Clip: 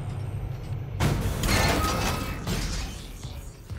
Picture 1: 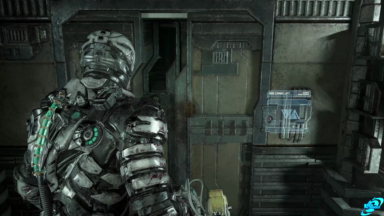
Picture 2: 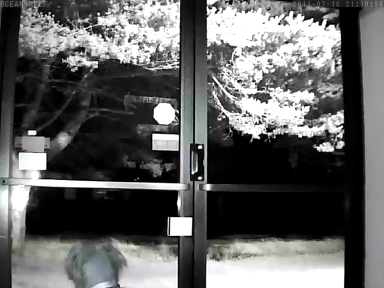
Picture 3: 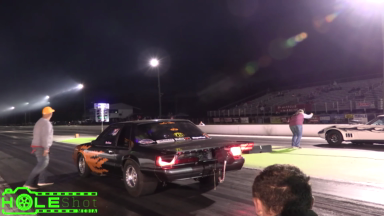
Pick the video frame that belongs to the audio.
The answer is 1